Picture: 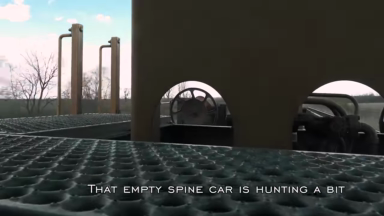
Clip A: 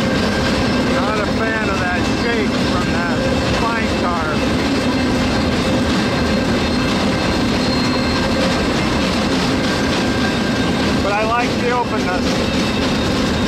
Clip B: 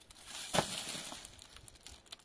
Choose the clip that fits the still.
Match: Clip A